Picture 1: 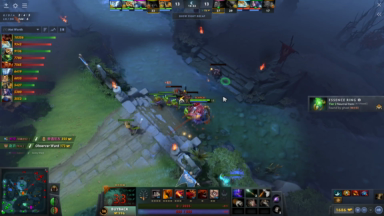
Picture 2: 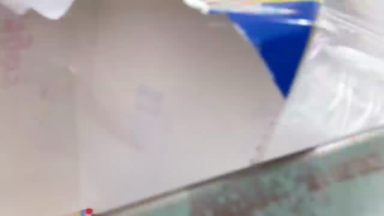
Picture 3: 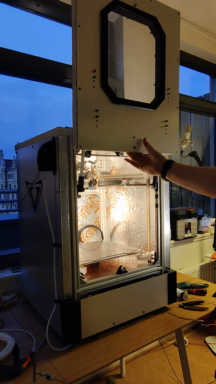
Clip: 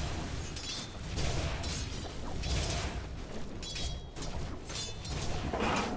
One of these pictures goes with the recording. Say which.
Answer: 1